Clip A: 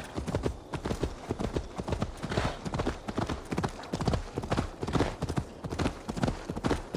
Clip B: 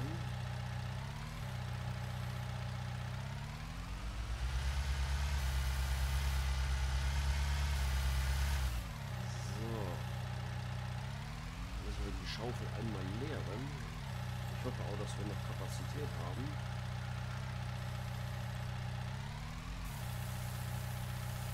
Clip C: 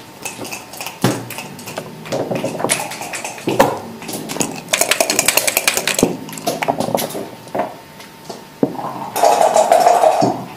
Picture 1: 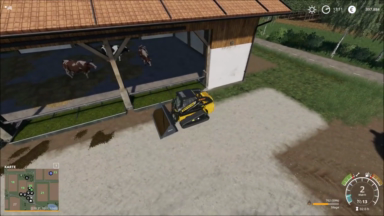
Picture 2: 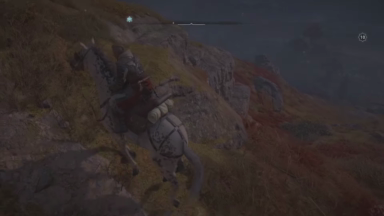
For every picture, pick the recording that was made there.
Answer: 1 B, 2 A